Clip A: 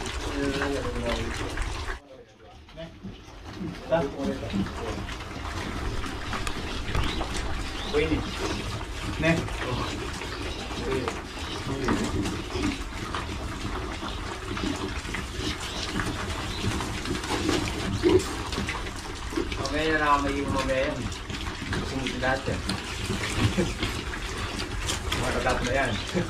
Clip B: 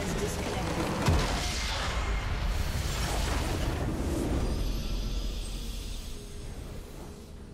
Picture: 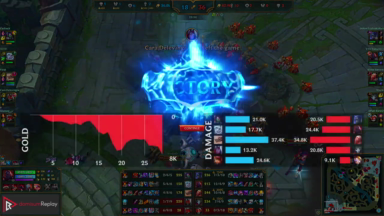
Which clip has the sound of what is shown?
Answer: B